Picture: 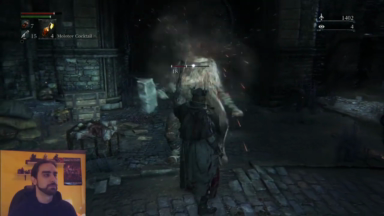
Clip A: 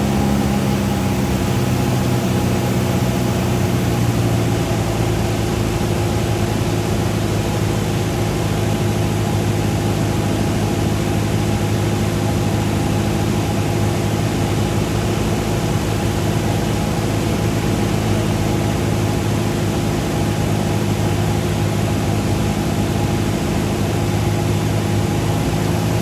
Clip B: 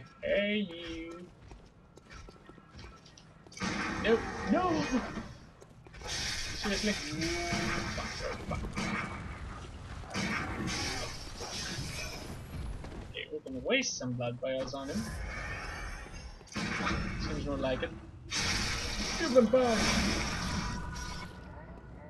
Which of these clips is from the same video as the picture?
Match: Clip B